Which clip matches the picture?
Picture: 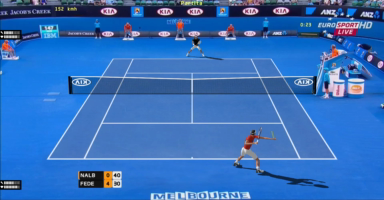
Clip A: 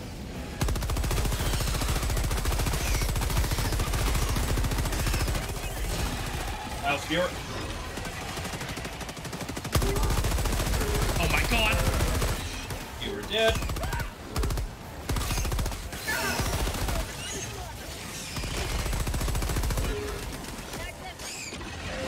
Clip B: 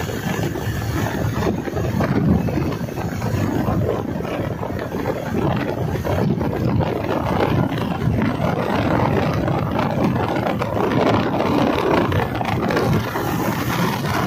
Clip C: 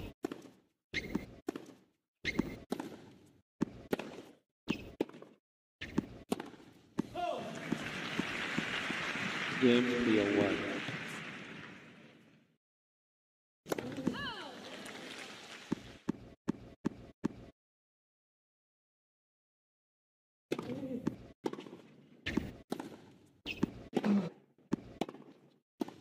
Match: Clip C